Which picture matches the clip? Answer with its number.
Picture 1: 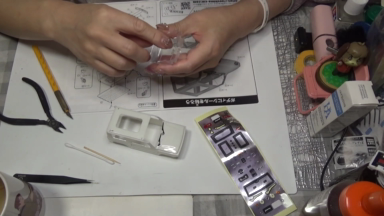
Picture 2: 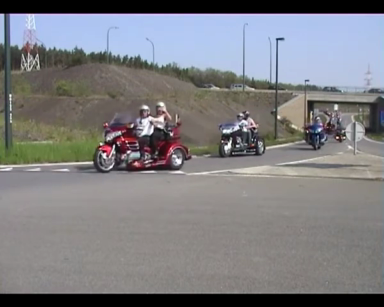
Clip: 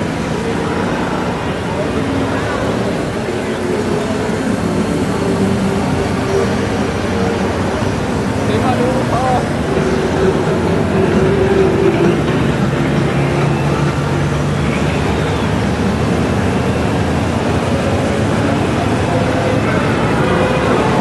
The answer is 2